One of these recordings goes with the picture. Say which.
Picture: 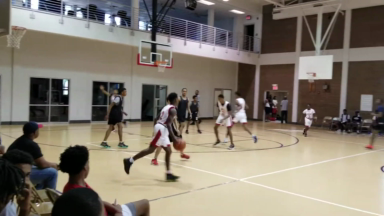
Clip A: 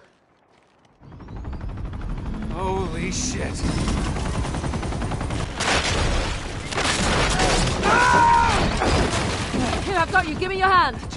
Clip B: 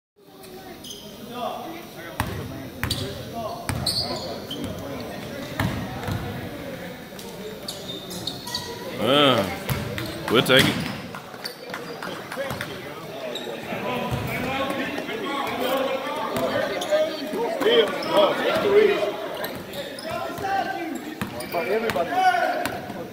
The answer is B